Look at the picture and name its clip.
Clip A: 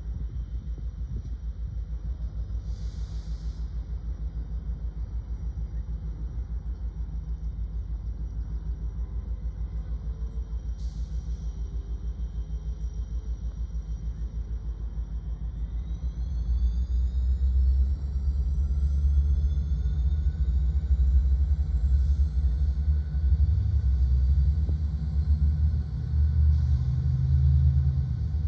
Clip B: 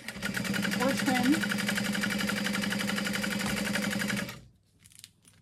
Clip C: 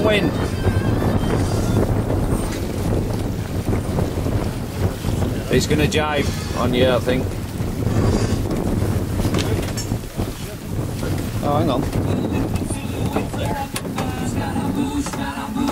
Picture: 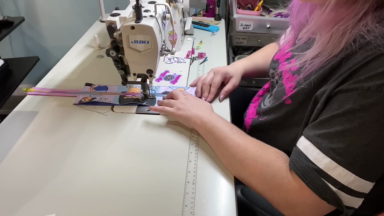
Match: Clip B